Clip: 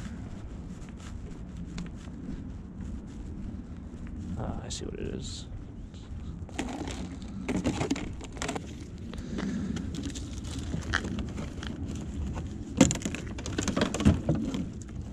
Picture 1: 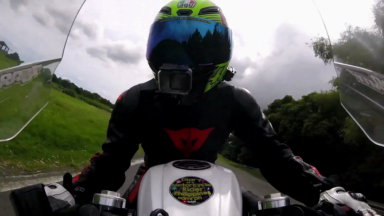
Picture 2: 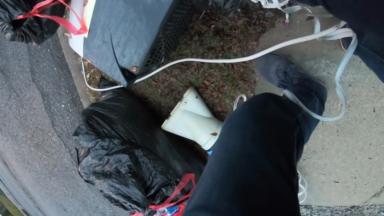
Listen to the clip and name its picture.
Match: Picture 2